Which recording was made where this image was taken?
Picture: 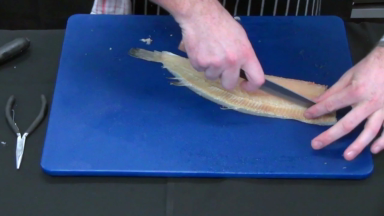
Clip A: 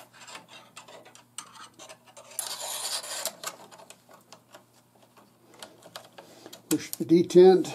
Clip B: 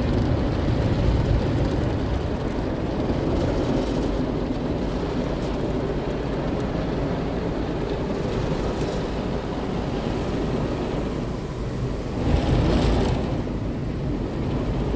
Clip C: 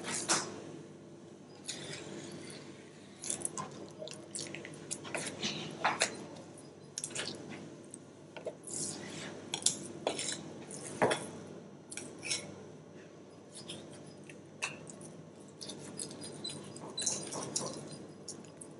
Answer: C